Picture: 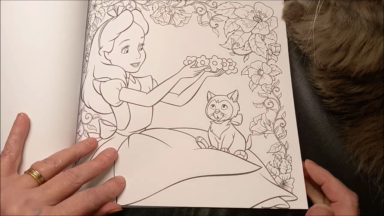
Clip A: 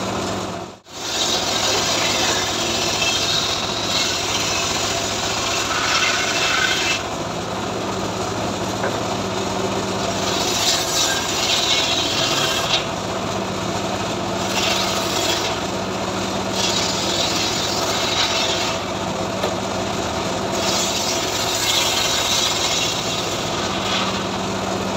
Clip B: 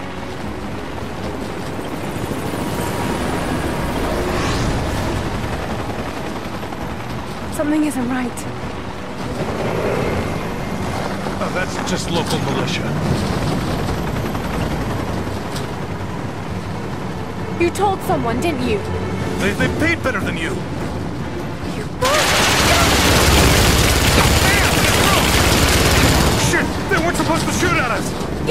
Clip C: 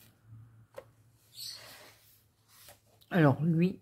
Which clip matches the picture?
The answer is C